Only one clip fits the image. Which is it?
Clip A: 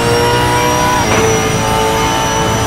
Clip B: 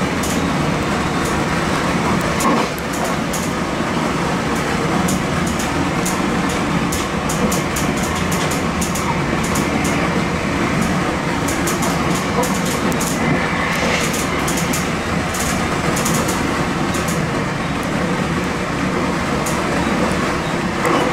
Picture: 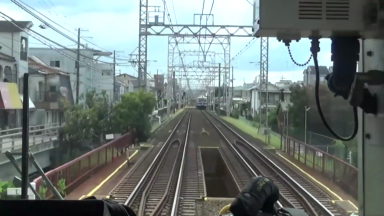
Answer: B